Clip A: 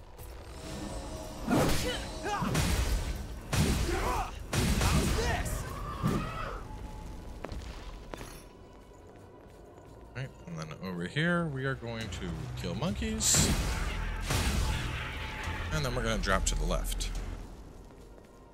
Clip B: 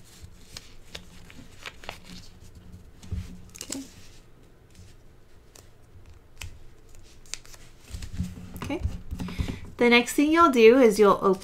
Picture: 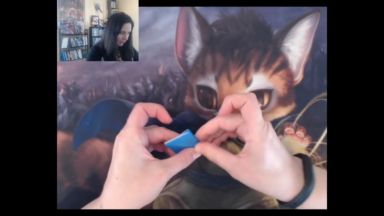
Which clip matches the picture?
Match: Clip B